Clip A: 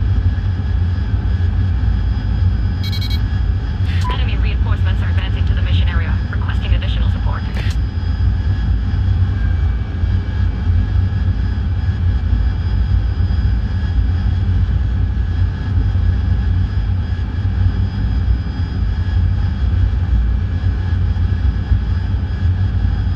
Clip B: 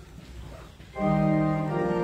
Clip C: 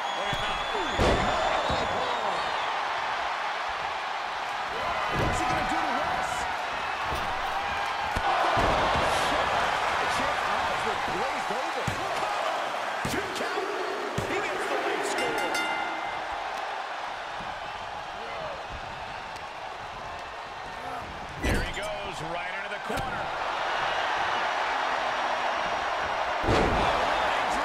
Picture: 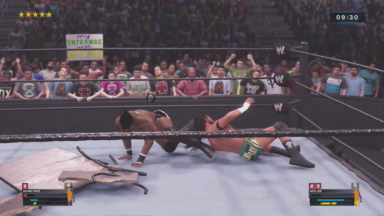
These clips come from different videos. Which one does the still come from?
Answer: C